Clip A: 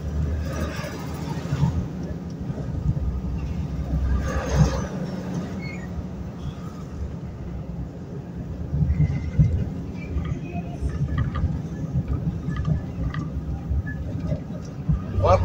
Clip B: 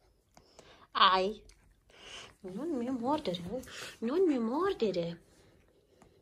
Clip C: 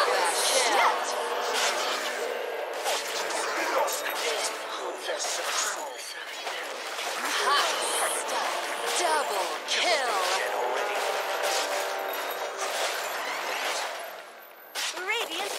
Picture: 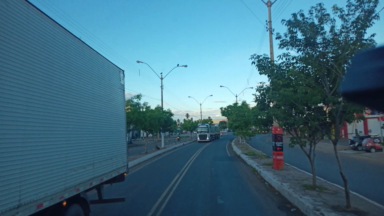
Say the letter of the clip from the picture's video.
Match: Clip A